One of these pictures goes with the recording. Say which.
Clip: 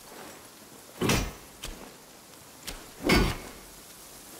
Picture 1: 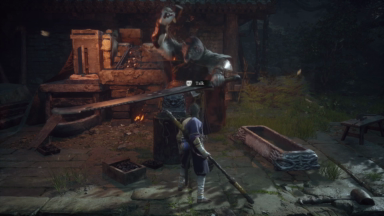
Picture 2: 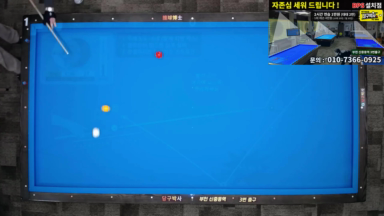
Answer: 1